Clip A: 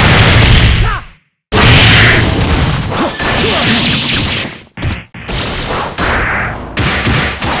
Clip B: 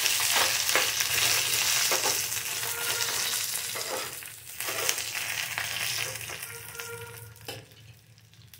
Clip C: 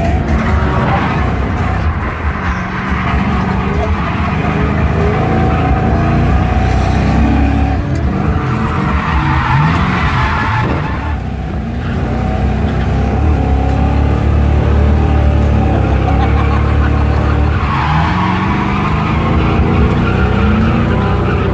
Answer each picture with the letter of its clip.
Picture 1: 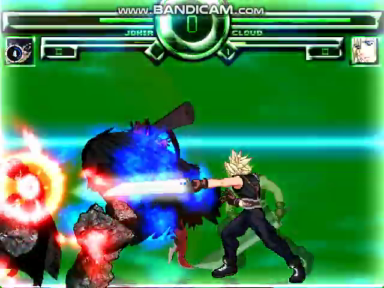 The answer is A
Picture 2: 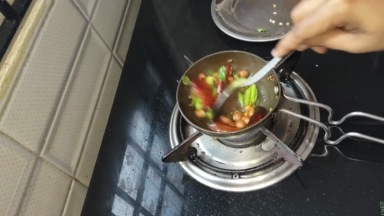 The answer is B